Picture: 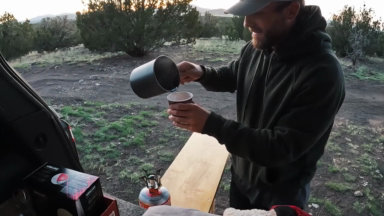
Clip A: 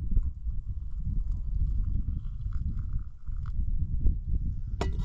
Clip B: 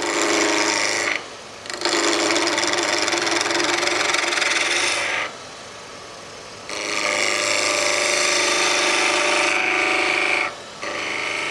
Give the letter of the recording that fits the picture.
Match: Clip A